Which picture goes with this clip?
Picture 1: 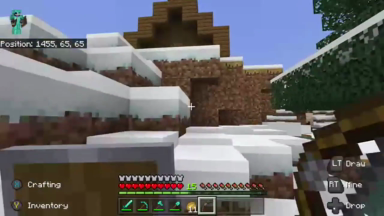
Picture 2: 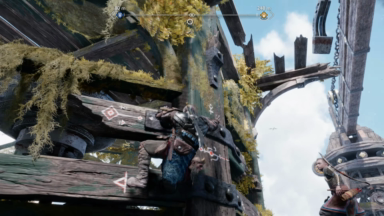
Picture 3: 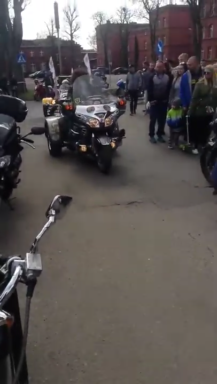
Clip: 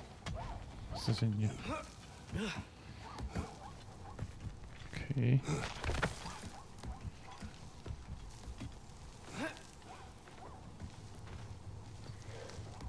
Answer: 2